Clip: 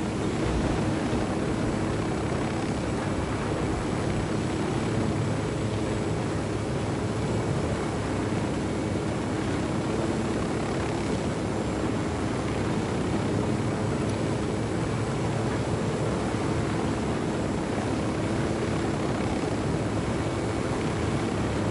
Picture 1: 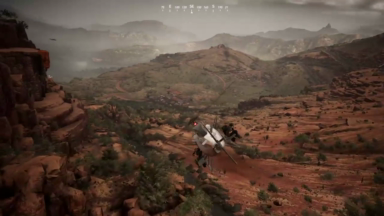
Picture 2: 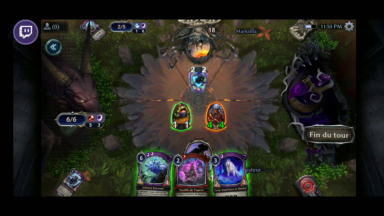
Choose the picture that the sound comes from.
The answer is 1